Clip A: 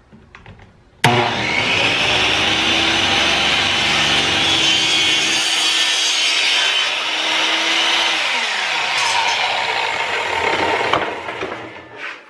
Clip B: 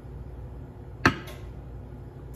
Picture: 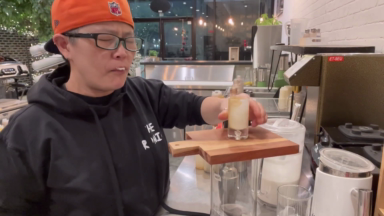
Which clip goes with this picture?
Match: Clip B